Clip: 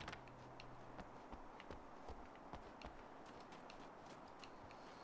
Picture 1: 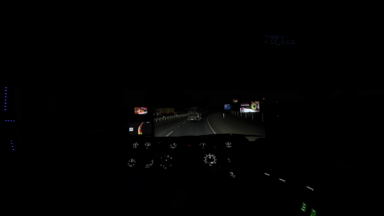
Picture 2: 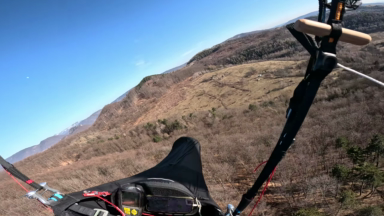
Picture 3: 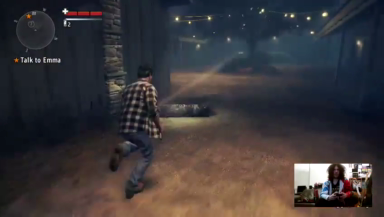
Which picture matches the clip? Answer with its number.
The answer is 3